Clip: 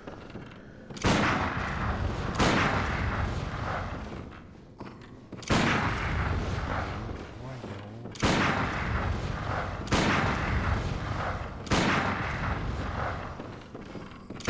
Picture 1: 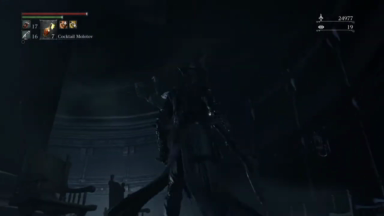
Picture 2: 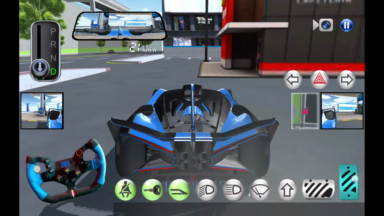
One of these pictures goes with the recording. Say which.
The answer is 1